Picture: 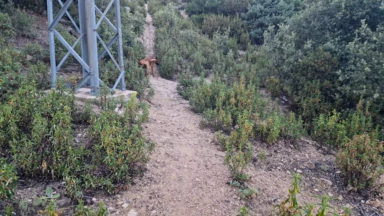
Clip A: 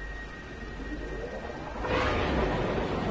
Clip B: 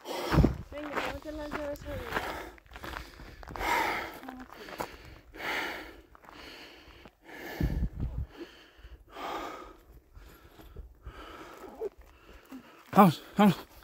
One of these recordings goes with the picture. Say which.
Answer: B